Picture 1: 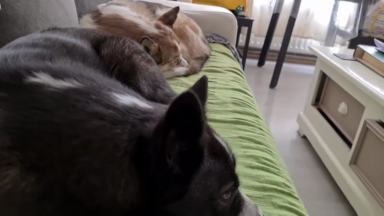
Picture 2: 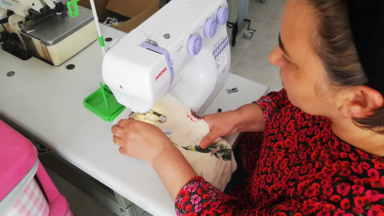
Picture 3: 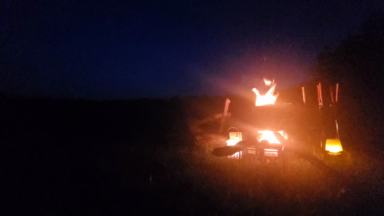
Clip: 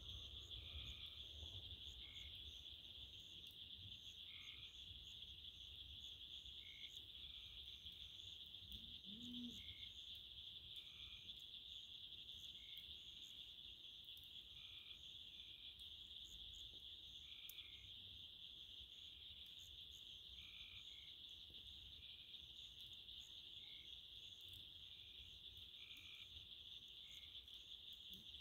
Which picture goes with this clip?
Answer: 3